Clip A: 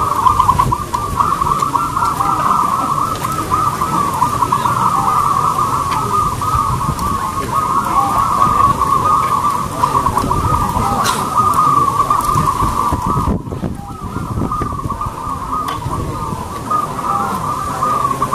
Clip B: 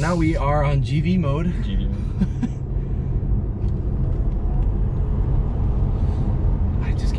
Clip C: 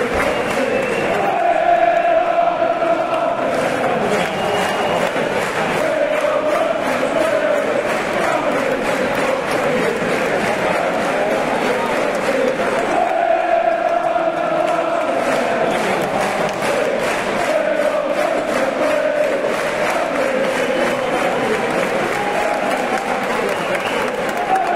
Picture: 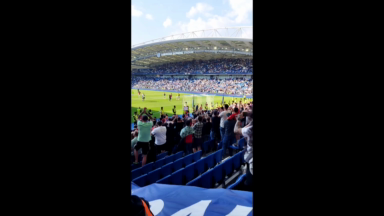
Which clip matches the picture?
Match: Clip C